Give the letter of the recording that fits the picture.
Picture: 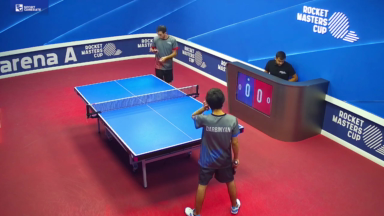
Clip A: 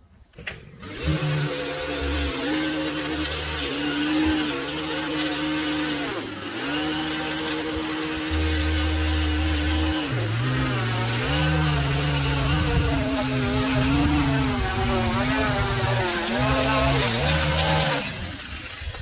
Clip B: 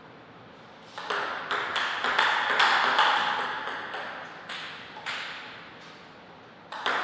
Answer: B